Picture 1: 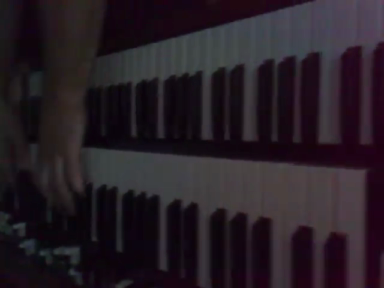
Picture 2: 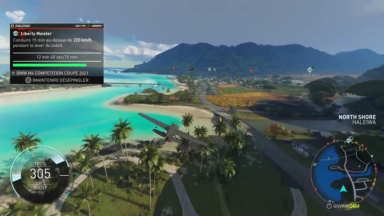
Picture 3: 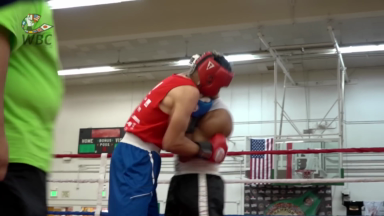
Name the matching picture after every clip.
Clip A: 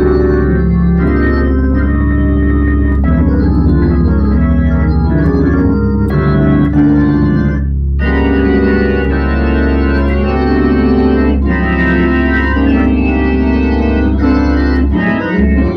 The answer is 1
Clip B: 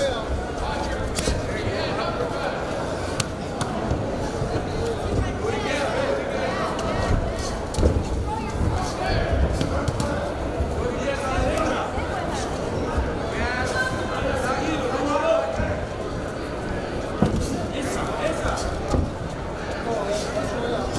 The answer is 3